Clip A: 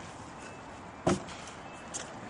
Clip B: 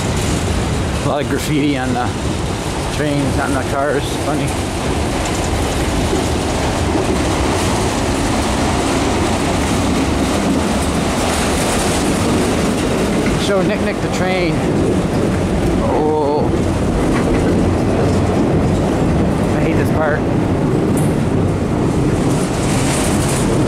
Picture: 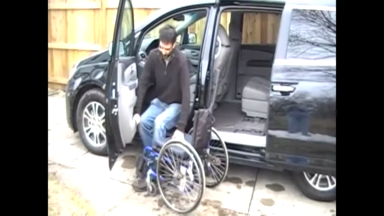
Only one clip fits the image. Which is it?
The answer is A